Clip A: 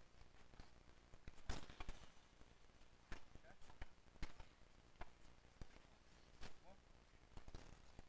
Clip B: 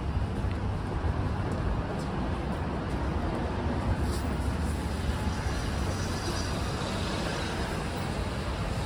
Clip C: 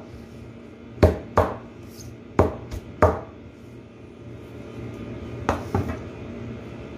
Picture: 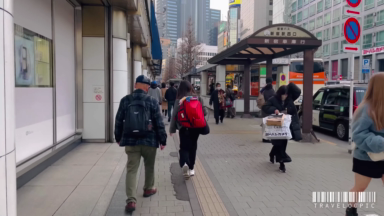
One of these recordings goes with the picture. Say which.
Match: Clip B